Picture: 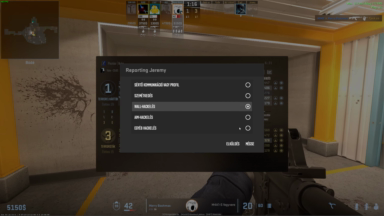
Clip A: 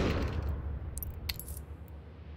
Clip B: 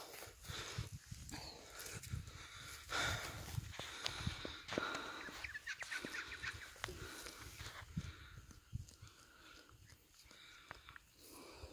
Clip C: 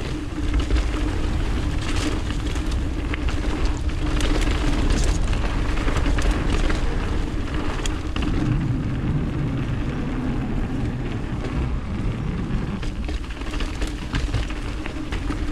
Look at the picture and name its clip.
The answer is A